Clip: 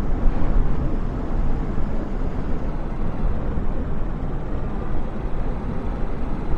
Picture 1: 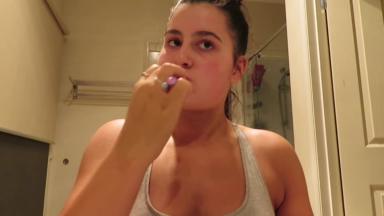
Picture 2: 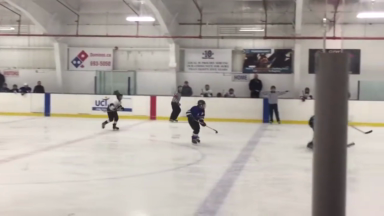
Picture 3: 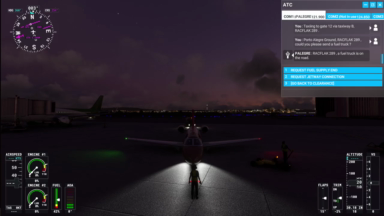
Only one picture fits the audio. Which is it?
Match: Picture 3